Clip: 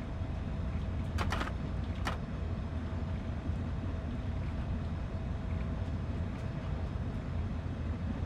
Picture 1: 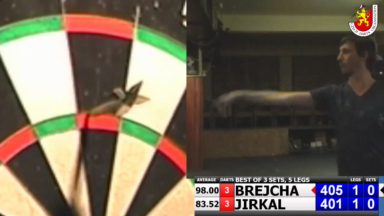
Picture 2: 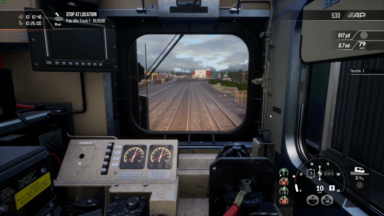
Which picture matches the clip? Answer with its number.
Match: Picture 2